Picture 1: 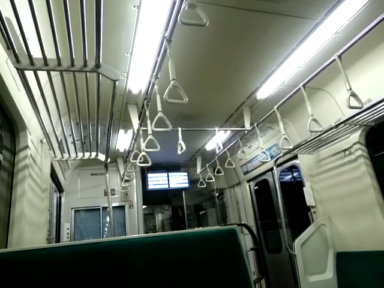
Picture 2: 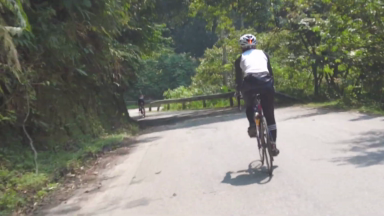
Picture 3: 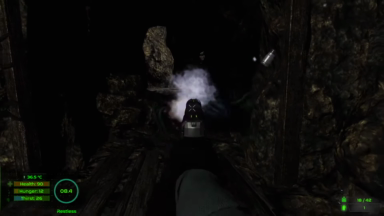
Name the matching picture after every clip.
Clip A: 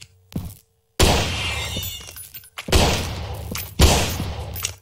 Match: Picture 3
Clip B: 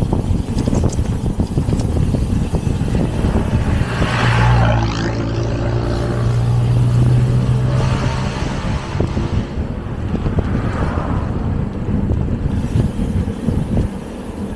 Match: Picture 2